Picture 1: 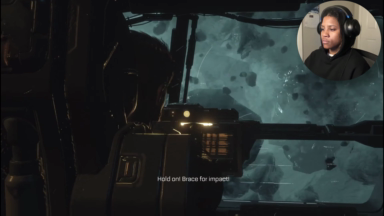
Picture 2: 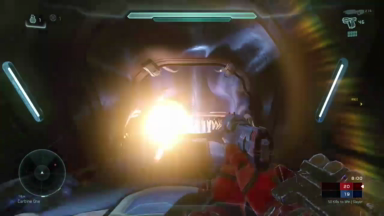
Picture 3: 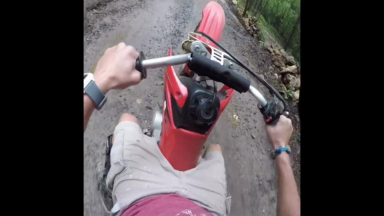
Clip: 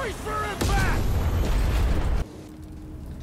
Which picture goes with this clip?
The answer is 1